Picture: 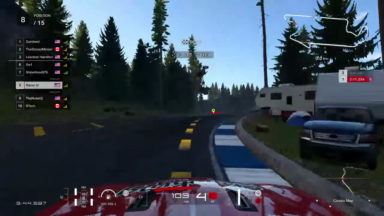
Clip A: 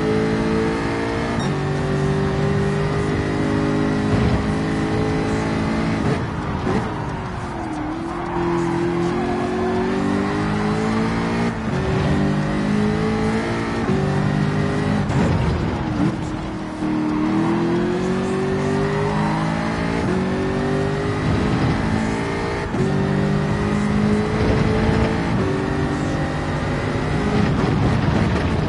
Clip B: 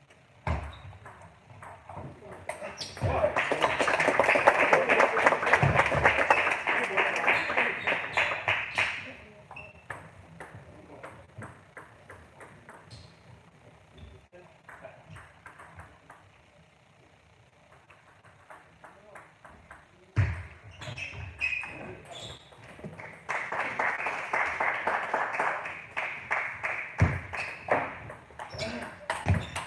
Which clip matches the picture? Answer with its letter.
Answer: A